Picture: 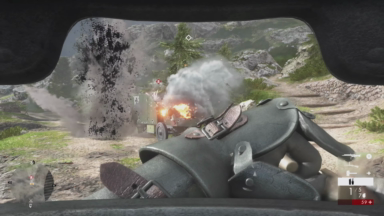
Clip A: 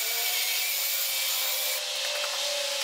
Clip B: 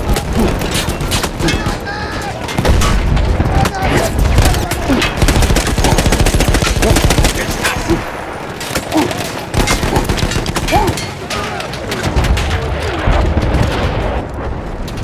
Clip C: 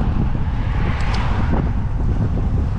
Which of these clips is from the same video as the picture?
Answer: B